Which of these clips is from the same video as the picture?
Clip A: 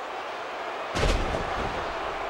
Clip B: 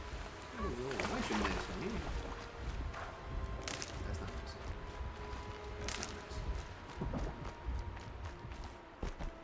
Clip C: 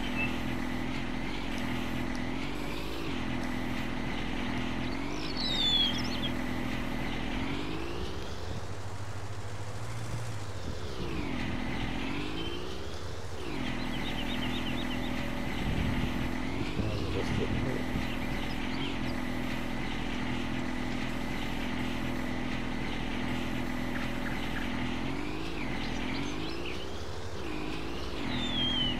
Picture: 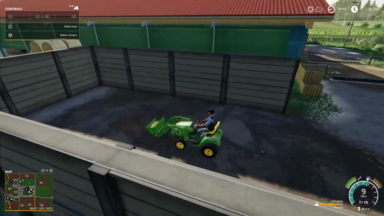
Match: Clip C